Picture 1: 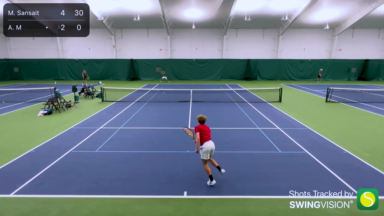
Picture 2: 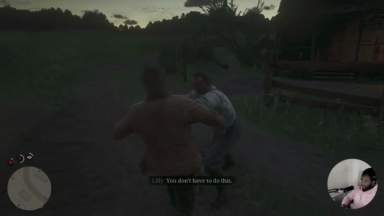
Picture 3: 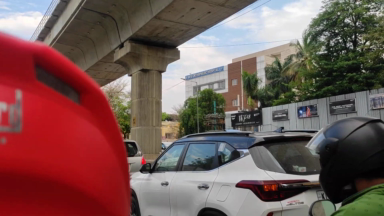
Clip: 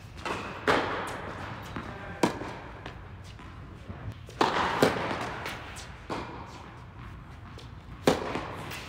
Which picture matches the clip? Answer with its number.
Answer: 1